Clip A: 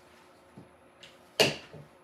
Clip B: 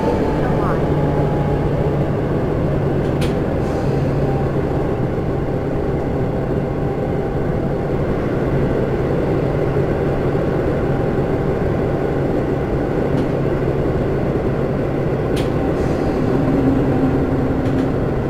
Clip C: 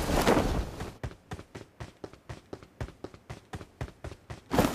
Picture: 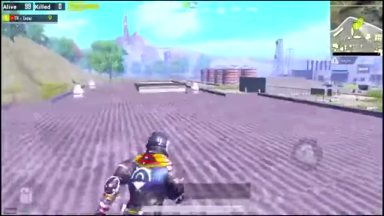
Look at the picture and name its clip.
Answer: C